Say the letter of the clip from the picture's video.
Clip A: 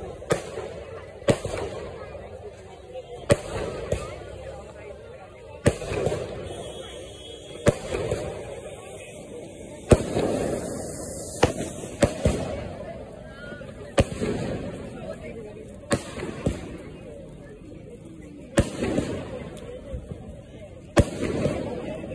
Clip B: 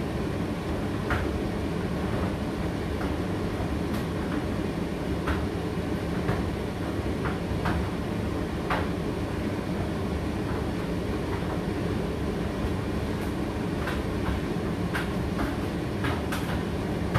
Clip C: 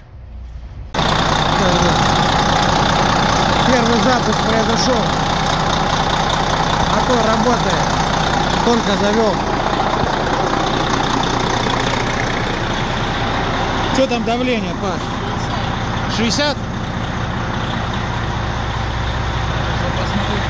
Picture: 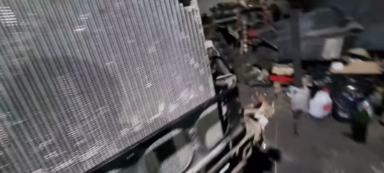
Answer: C